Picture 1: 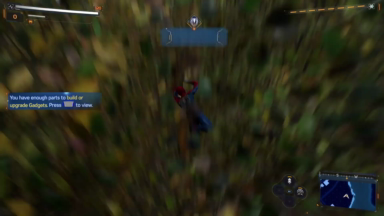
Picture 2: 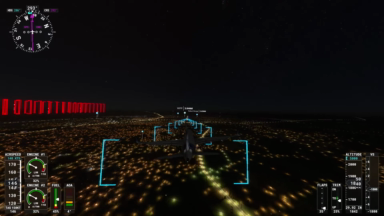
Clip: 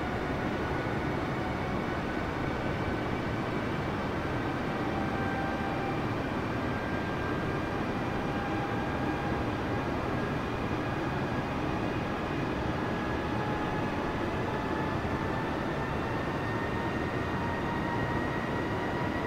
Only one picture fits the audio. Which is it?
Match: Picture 2